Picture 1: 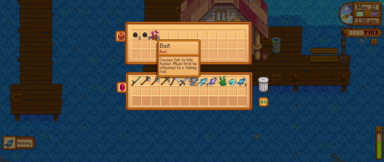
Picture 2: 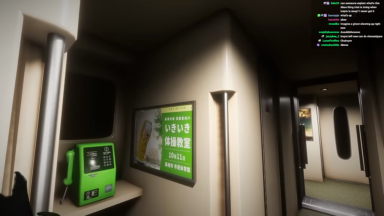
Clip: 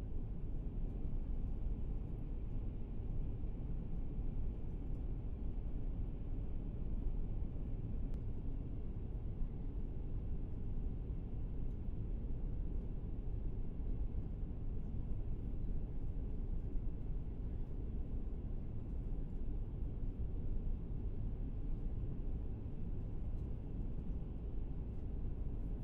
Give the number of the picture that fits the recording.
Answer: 2